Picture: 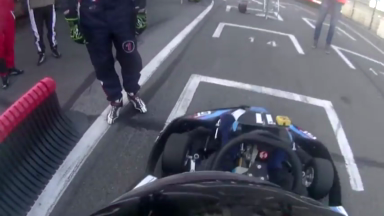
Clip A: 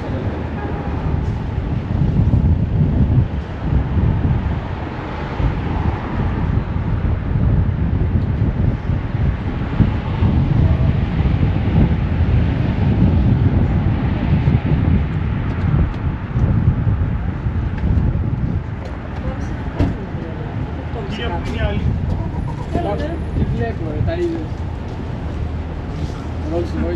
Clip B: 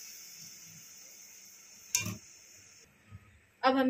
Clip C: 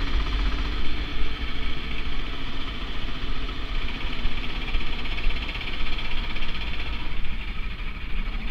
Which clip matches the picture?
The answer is C